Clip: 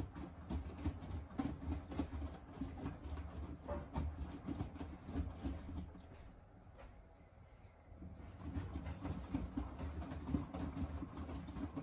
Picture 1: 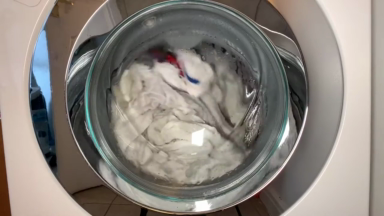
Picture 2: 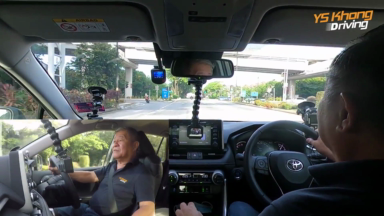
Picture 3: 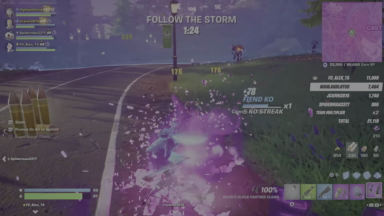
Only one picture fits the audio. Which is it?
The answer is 1